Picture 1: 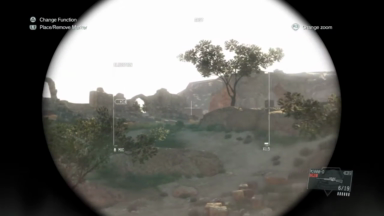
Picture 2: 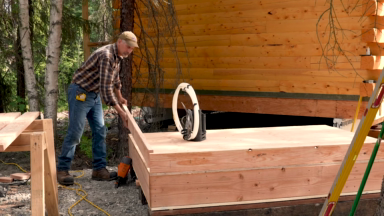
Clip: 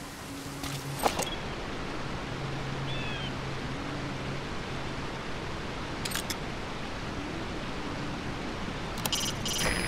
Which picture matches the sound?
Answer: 1